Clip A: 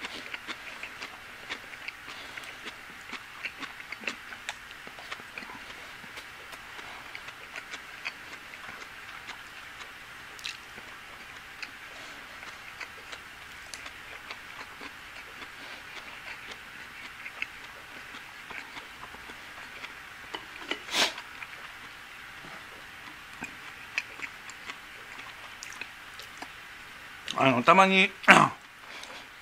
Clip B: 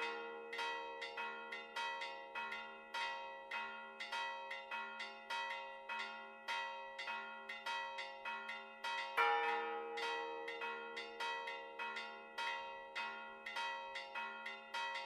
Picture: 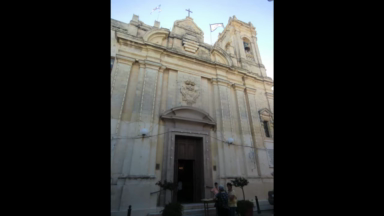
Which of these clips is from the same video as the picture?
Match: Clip B